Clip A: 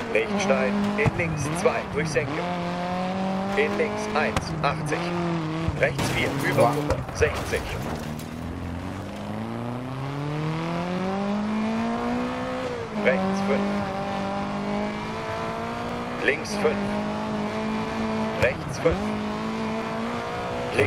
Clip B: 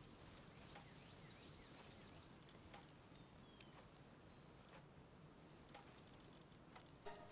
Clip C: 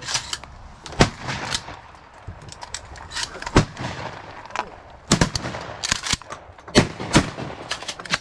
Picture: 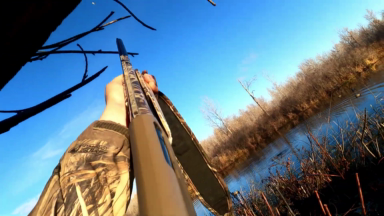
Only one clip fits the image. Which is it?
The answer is C